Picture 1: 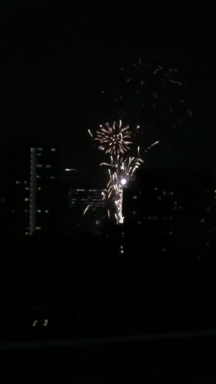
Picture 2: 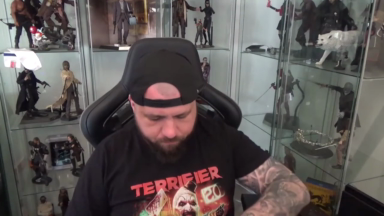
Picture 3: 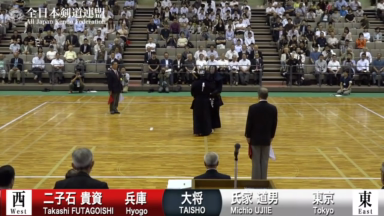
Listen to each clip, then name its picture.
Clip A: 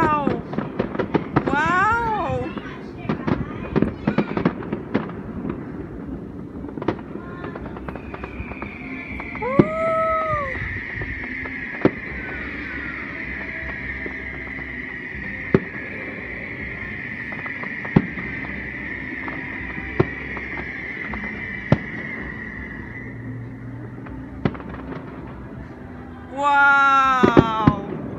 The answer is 1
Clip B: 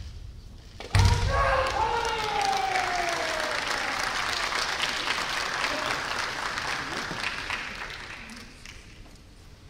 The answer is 3